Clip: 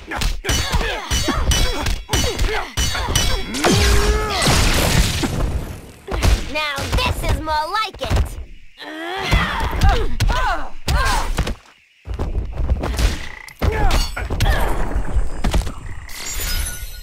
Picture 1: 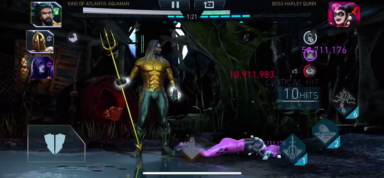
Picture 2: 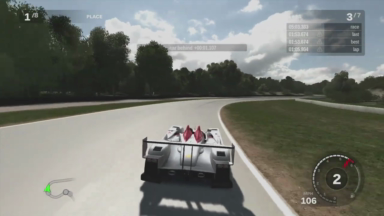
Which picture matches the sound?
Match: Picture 1